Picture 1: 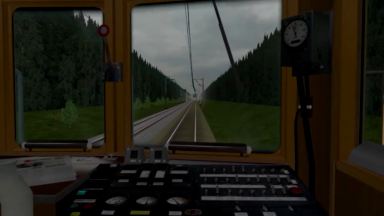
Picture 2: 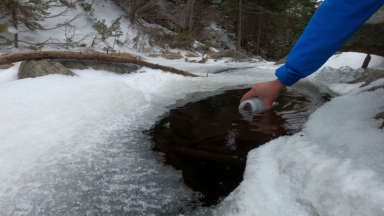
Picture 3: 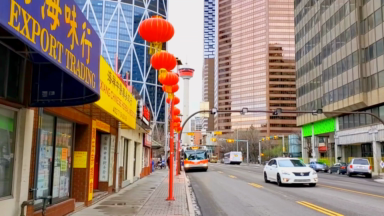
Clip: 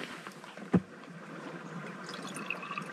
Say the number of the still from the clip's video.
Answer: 2